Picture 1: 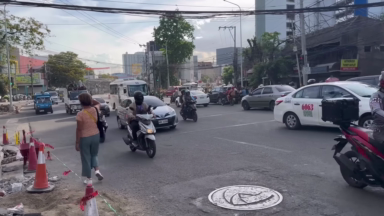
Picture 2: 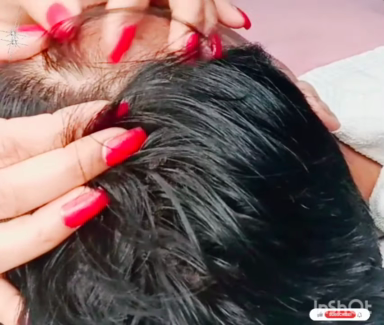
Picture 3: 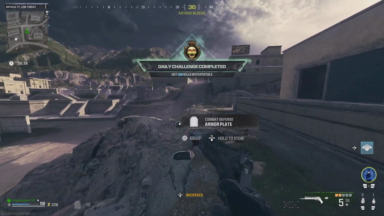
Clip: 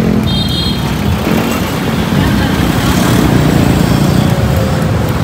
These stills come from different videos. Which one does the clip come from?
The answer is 1